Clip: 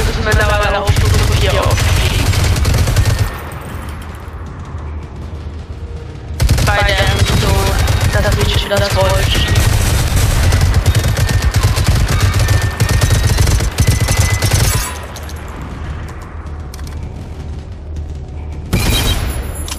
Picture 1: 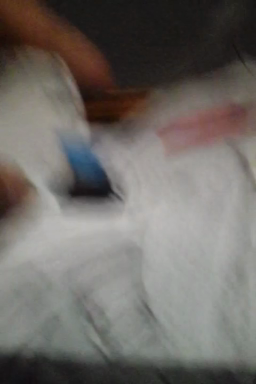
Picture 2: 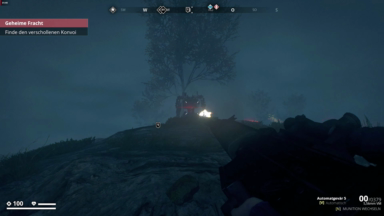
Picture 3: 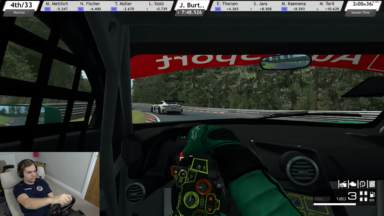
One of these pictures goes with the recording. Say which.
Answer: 2